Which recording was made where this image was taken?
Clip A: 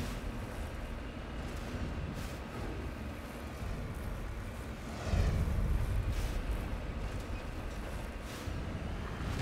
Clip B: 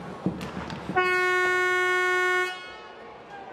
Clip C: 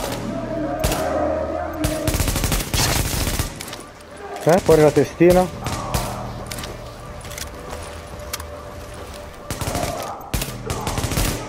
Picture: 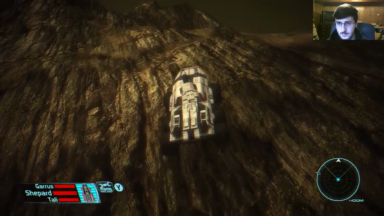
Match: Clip A